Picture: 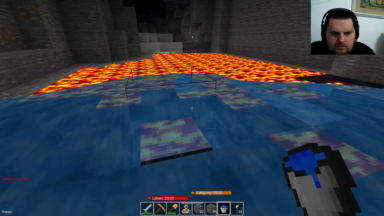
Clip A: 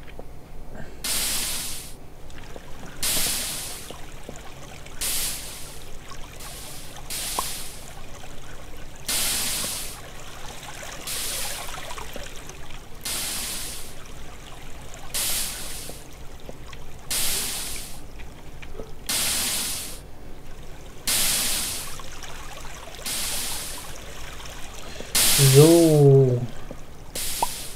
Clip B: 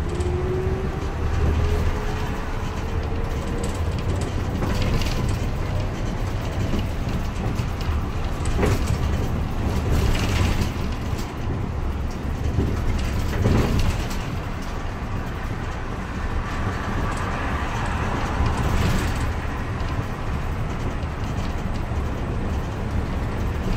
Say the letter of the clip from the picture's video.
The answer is A